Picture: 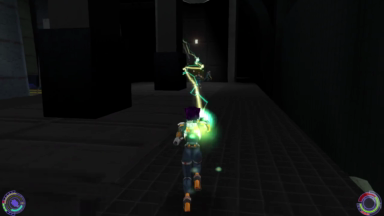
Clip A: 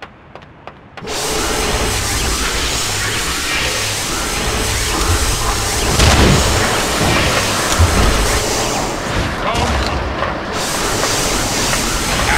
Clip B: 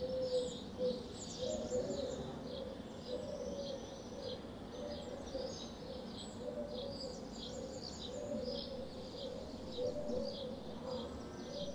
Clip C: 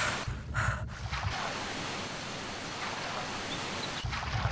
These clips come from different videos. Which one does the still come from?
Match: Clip A